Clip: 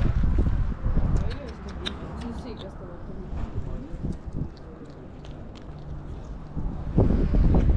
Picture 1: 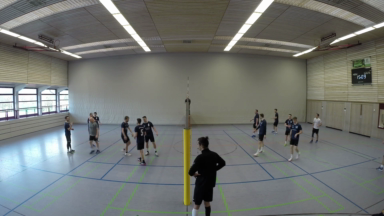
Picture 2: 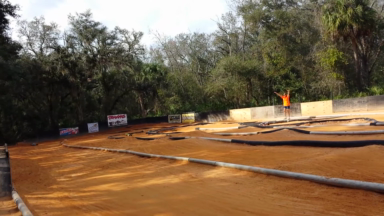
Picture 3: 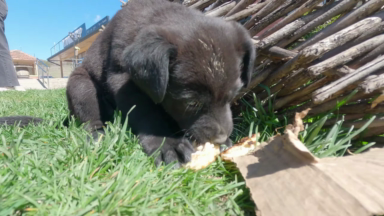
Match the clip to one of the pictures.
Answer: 3